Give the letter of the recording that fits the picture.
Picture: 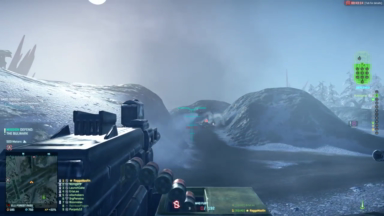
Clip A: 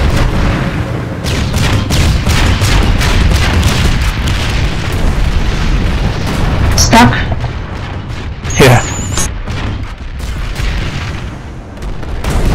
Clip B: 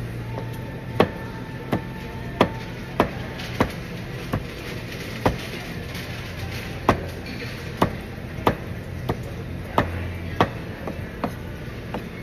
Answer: A